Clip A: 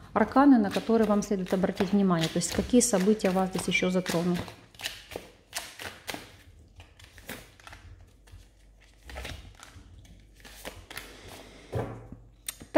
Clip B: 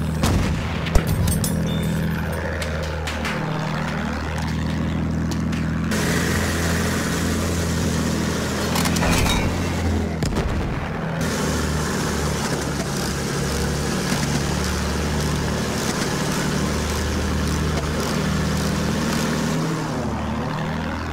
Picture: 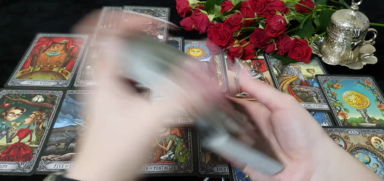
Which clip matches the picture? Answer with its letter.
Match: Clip A